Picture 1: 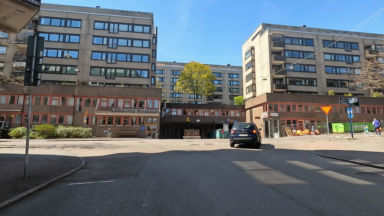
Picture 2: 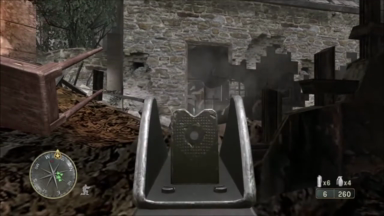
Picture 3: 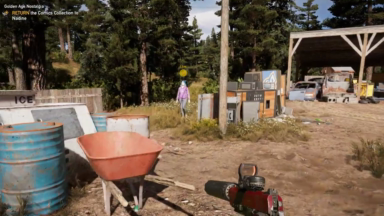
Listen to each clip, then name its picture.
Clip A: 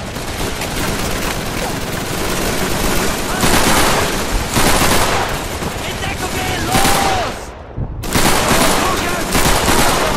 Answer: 2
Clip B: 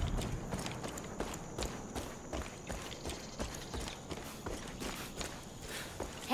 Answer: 3